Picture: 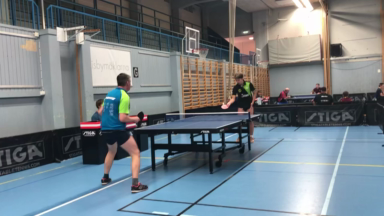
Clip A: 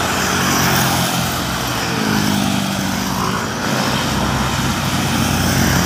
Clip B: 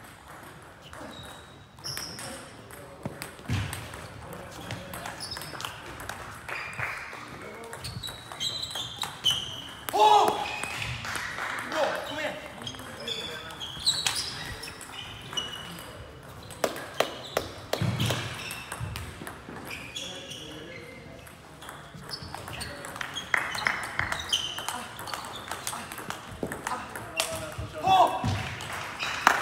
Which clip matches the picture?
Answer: B